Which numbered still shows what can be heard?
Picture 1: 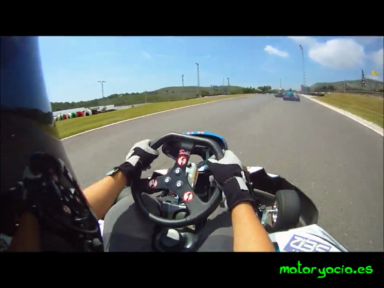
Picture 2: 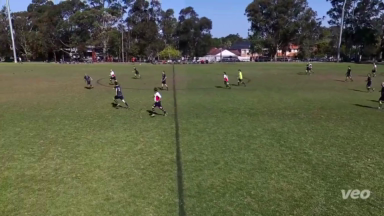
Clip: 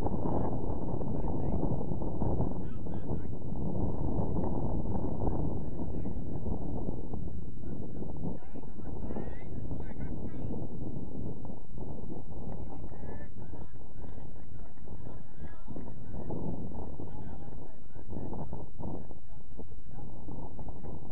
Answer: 2